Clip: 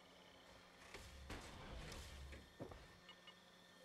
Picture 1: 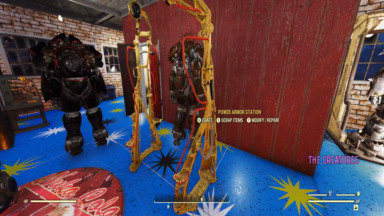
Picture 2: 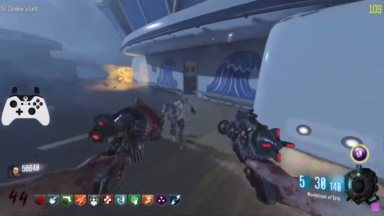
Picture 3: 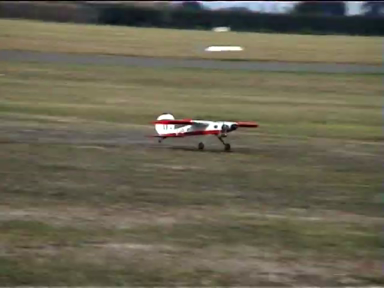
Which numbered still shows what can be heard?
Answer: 1